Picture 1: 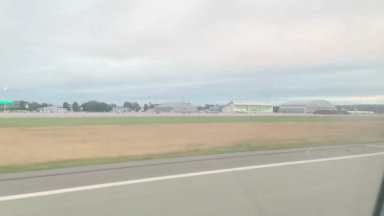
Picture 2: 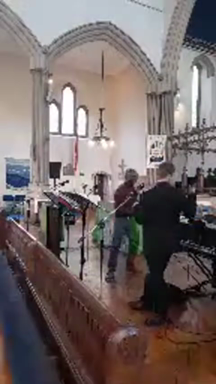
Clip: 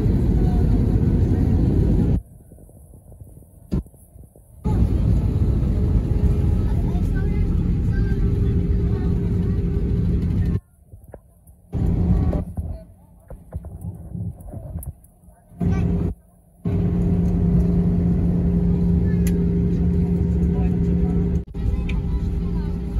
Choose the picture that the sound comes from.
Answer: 1